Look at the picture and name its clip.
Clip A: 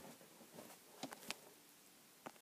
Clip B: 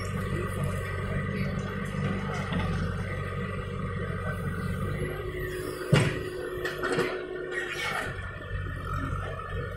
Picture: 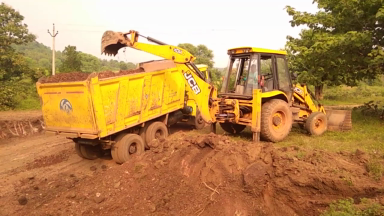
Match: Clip B